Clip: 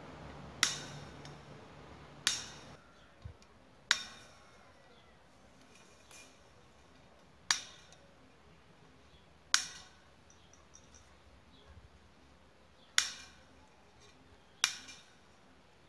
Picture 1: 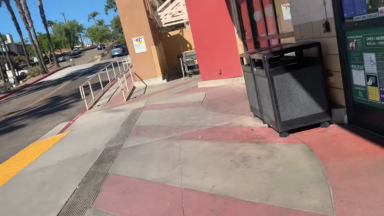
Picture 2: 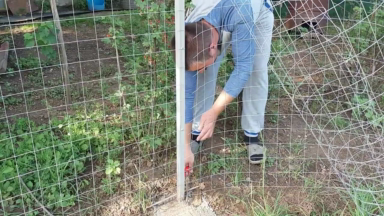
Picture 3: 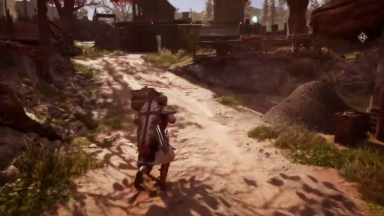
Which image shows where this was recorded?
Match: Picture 2